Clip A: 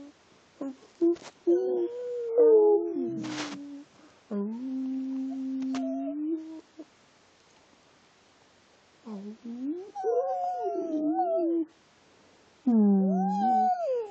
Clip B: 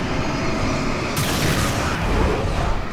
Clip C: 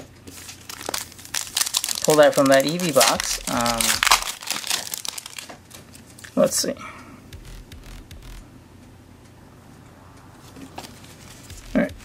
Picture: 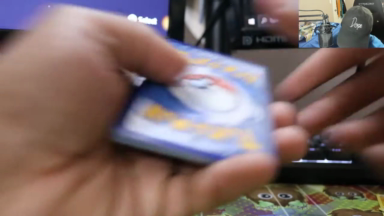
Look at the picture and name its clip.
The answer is C